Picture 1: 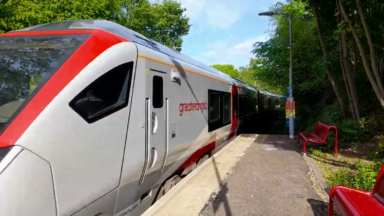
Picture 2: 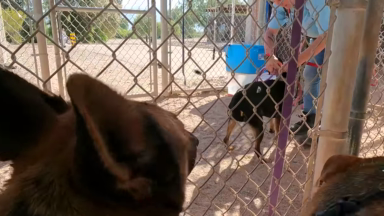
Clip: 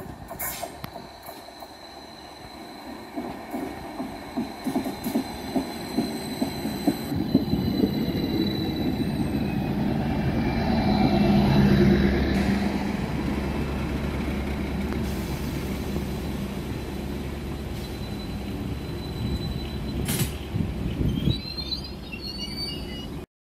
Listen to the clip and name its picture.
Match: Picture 1